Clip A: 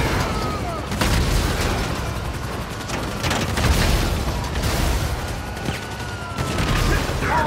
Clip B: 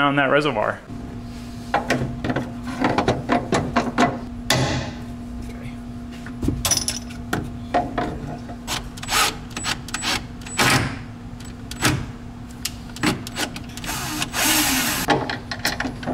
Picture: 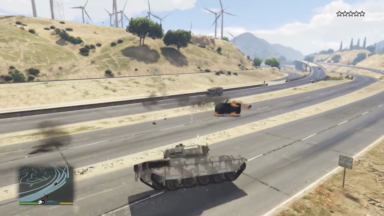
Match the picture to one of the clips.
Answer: A